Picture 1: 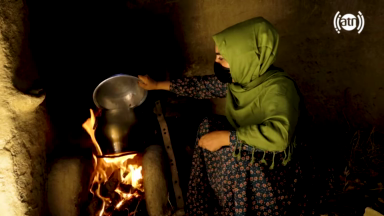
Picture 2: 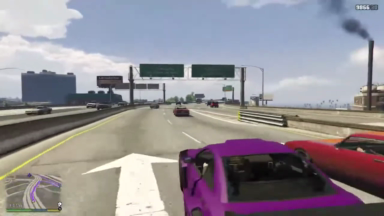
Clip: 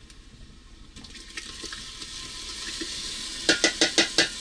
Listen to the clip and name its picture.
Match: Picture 1